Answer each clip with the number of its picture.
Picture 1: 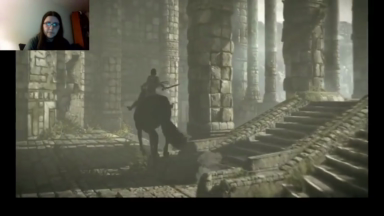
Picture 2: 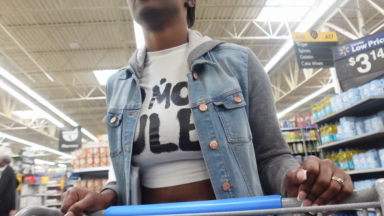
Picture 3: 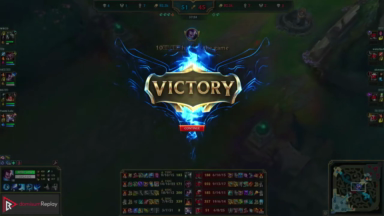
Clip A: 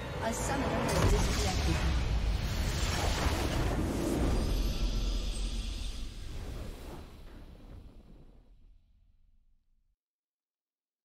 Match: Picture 3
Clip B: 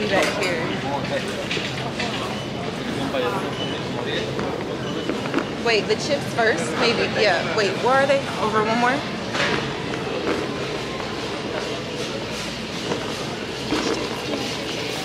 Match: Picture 2